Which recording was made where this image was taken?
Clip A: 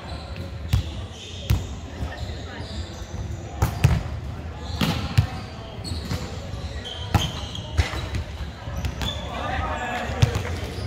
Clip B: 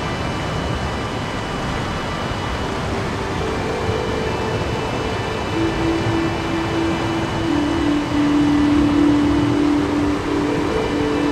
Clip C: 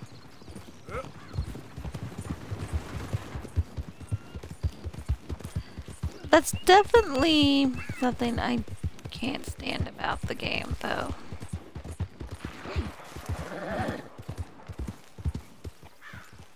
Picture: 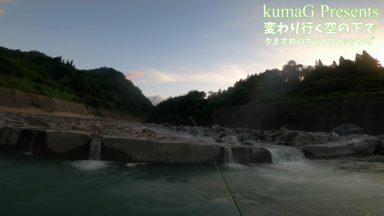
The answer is B